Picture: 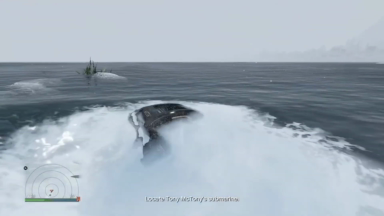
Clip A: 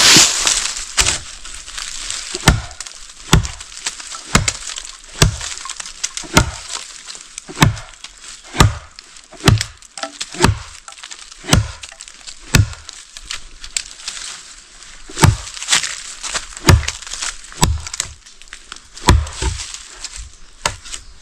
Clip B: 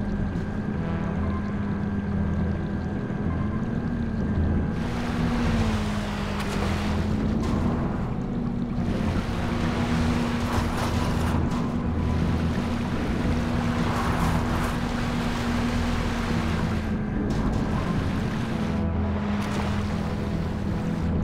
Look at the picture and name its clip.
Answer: B